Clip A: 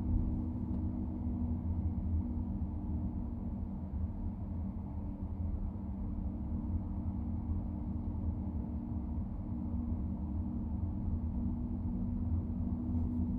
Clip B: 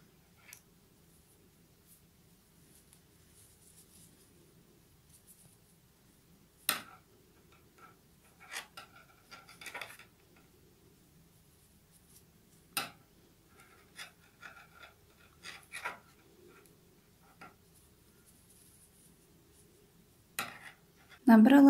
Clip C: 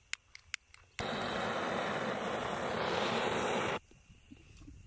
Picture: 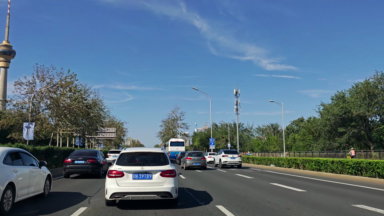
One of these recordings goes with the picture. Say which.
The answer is A